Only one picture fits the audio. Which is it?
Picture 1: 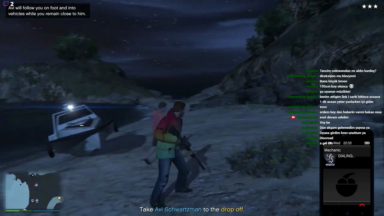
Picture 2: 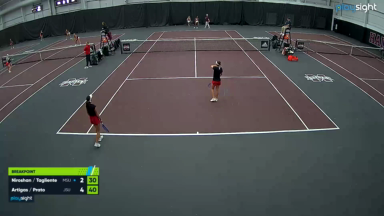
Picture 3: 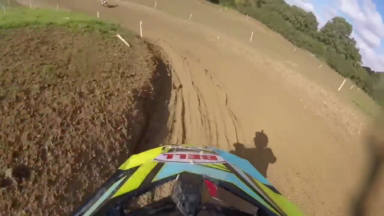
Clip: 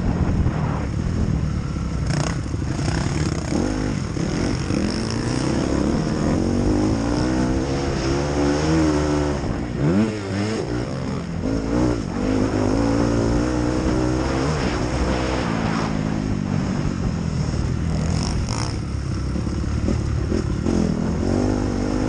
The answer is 3